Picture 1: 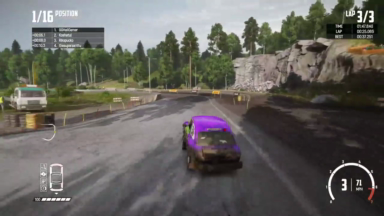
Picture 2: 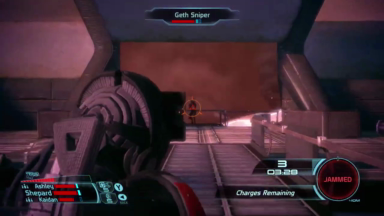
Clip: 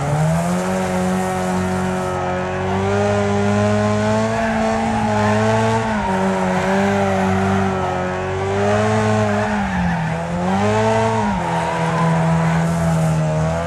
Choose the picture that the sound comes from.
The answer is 1